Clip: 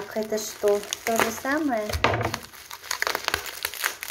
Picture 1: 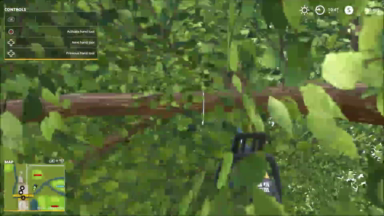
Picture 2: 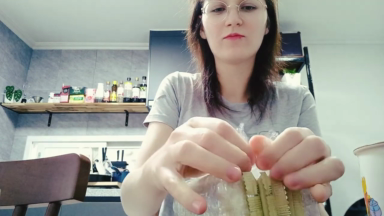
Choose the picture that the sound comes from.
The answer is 2